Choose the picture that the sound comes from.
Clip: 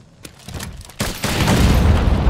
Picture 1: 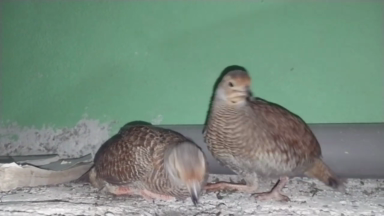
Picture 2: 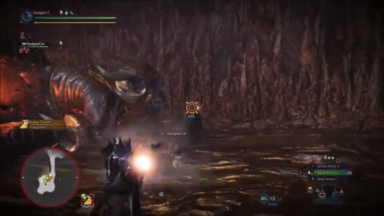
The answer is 2